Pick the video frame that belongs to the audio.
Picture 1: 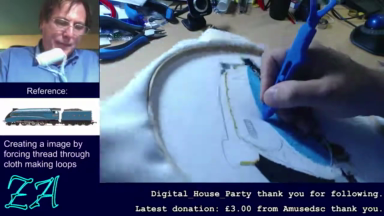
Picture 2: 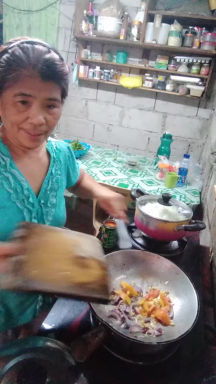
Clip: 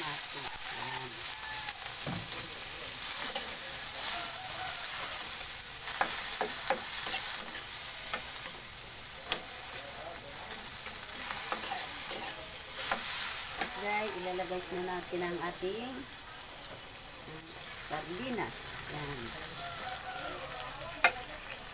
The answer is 2